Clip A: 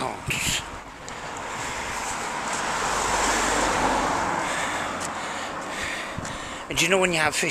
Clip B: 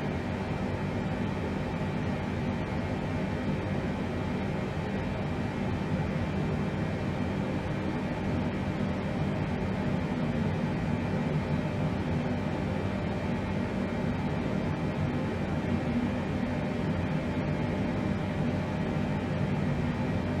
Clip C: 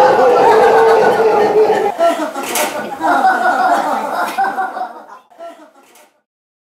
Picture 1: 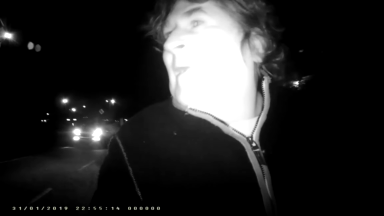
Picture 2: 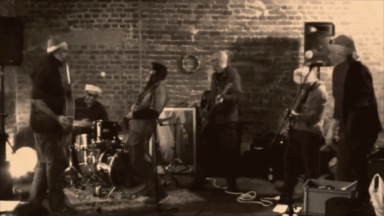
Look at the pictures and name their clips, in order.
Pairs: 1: A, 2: C